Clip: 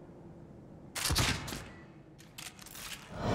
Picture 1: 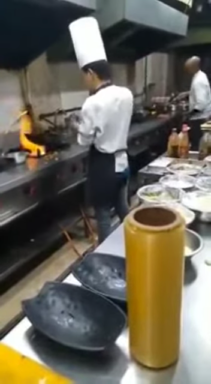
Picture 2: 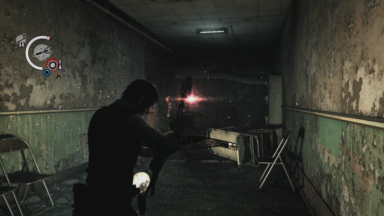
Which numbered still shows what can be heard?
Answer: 2